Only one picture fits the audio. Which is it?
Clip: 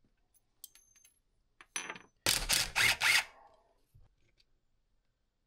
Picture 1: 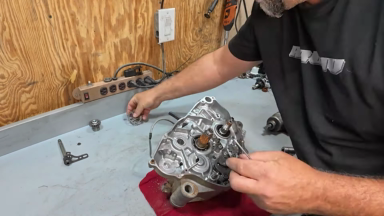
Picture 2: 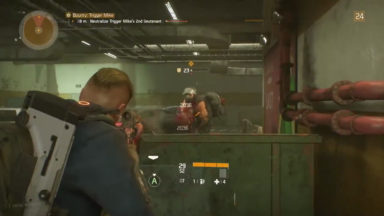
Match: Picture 1